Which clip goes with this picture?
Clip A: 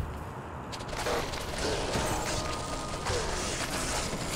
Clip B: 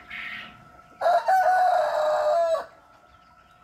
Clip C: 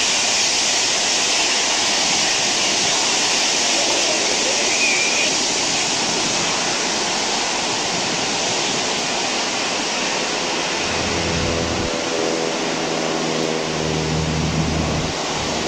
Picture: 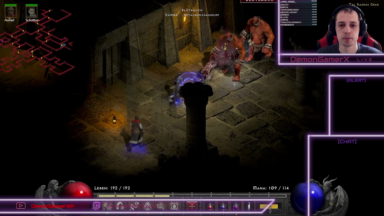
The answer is A